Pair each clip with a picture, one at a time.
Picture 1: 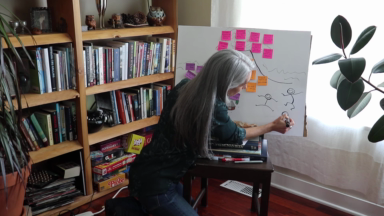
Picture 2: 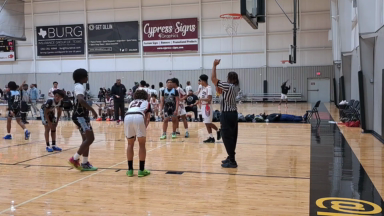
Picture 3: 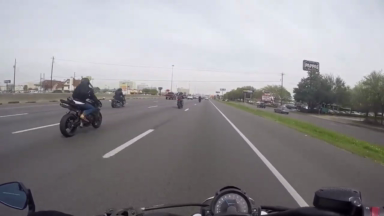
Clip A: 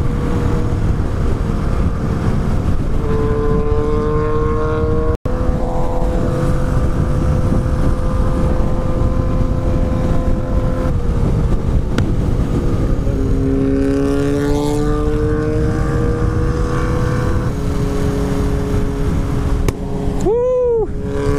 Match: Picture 3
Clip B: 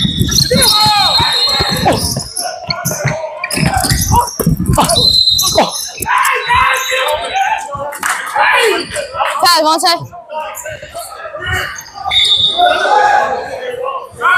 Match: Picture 2